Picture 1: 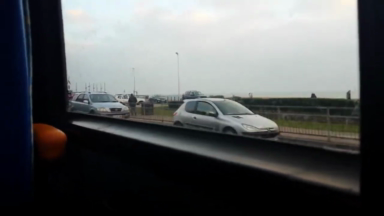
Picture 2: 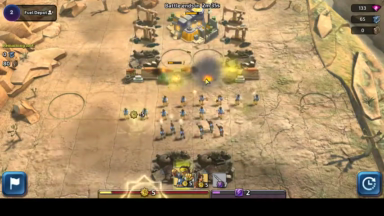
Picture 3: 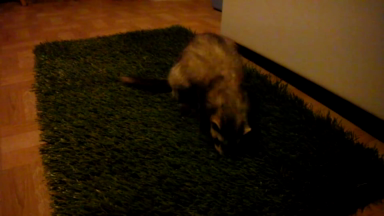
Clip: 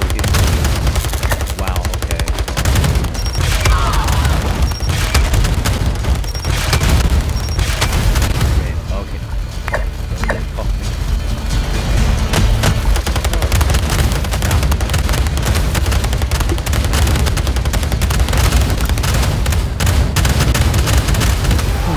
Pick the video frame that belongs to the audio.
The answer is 2